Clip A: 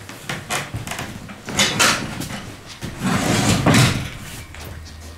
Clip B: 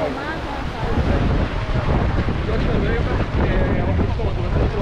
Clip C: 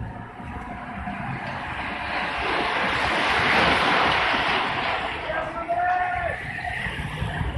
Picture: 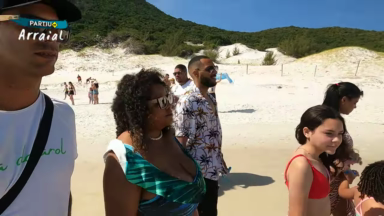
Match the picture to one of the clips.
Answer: B